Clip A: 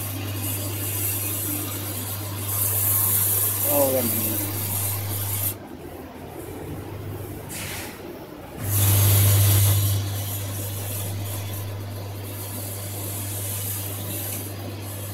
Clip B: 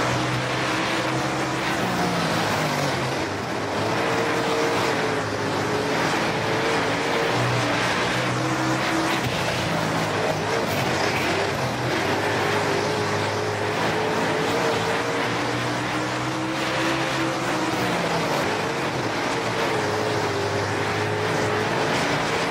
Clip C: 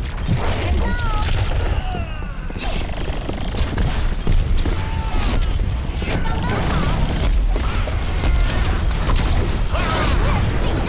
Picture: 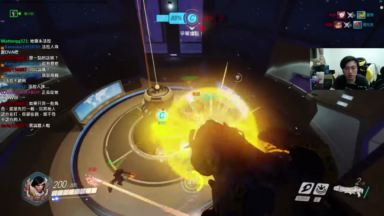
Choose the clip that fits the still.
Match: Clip C